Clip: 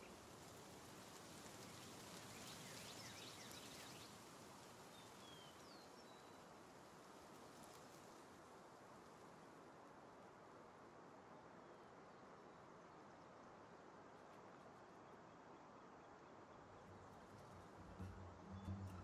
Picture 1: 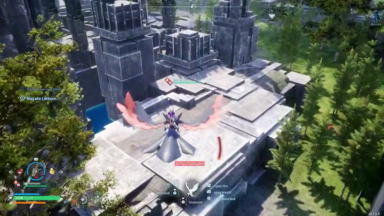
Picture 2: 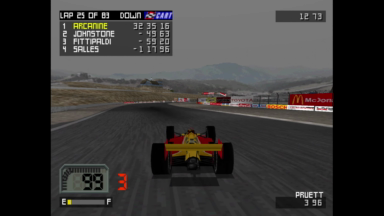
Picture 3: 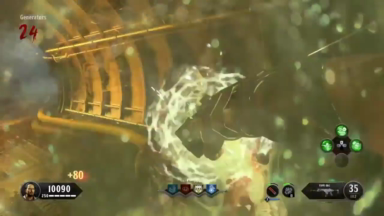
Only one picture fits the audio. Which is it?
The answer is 1